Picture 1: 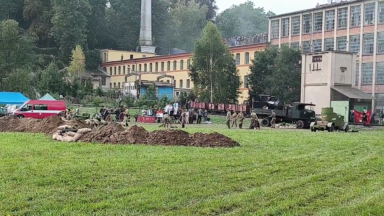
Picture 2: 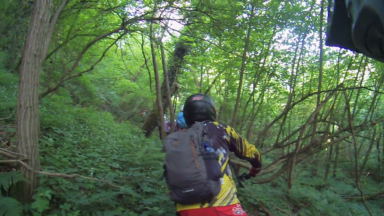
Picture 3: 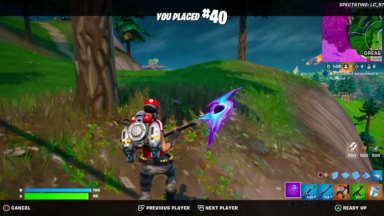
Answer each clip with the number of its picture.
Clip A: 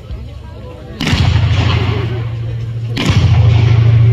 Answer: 1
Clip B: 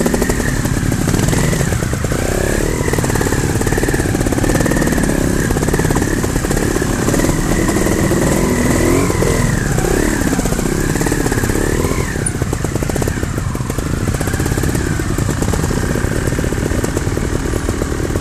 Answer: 2